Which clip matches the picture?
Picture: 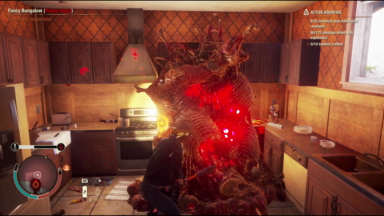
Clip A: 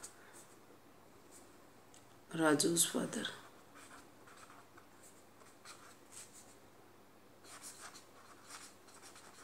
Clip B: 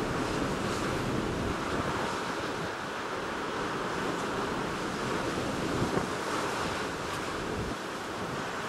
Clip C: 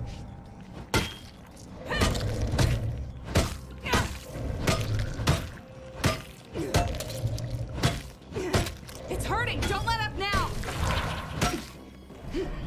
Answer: C